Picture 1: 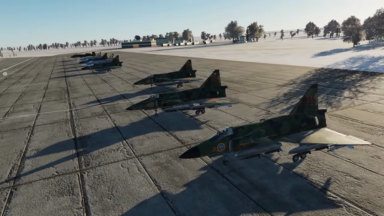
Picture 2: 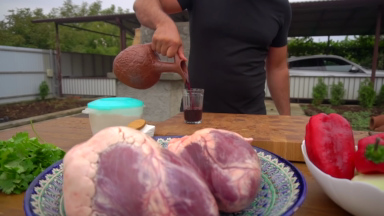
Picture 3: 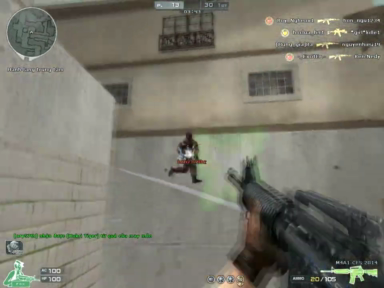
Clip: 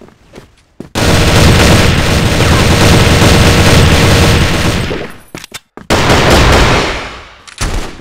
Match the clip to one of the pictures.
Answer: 3